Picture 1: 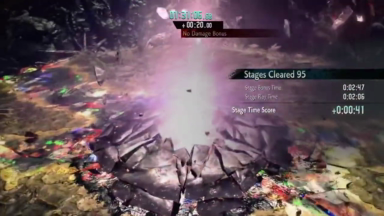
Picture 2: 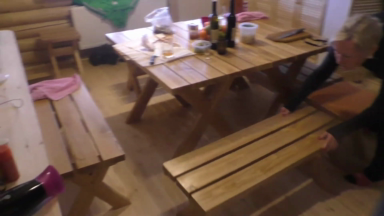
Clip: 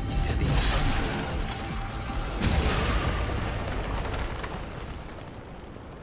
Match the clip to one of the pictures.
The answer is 1